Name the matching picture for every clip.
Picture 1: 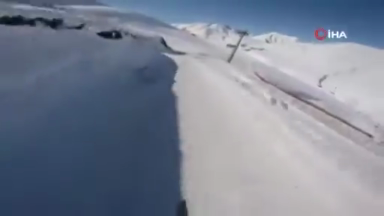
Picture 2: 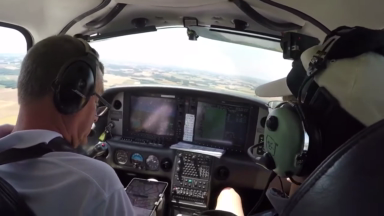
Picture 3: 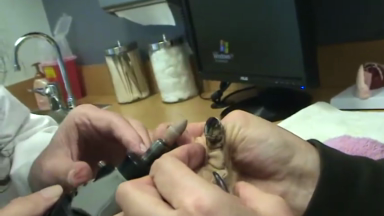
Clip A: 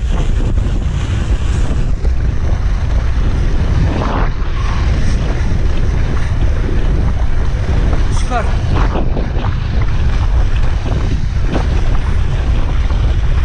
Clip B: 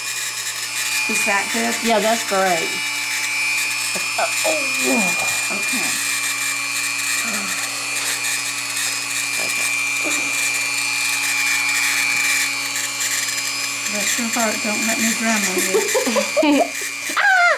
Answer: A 1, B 3